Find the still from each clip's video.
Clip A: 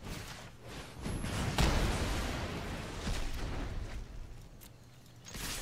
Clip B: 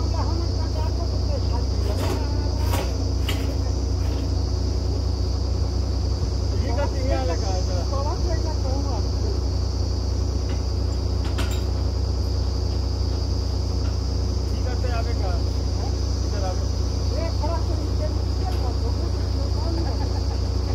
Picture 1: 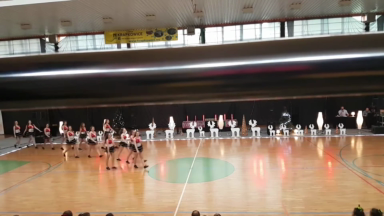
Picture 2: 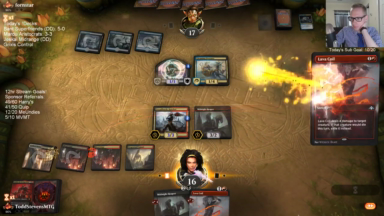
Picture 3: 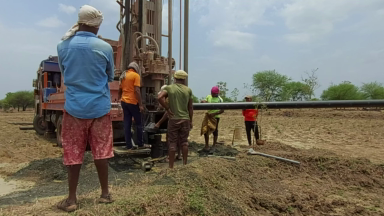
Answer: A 2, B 3